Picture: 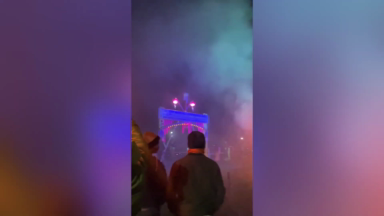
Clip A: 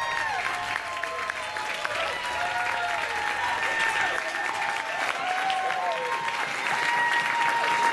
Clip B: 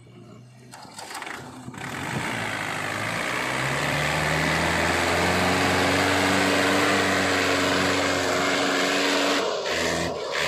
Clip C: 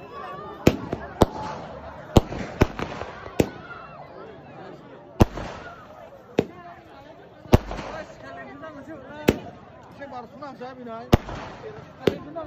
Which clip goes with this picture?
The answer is C